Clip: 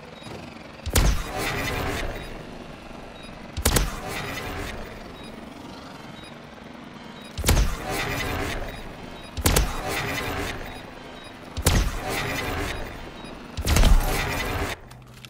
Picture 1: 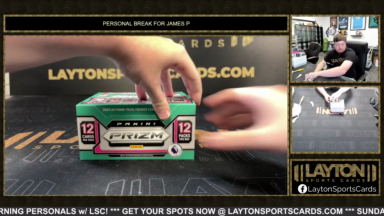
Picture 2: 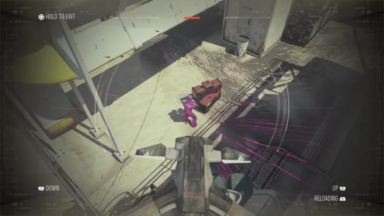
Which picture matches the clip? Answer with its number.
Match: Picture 2